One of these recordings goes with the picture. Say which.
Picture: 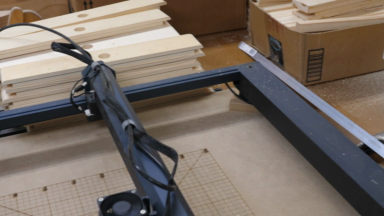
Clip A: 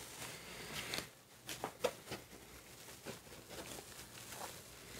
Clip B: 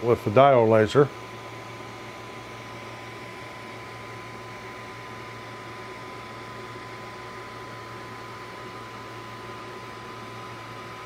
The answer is B